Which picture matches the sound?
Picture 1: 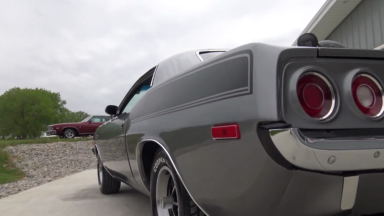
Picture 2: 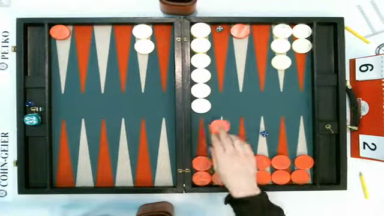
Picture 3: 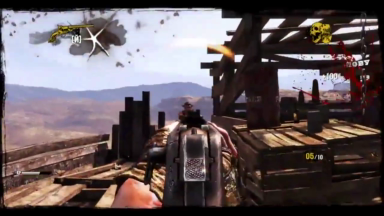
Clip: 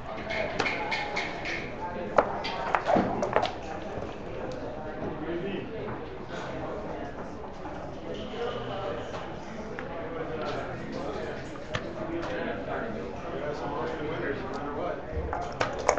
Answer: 2